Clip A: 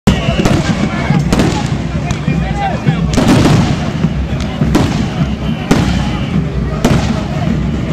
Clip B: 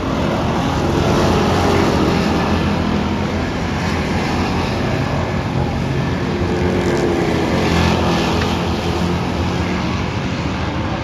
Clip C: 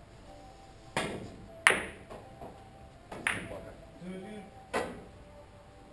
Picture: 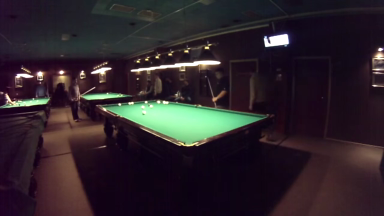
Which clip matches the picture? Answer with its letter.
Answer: C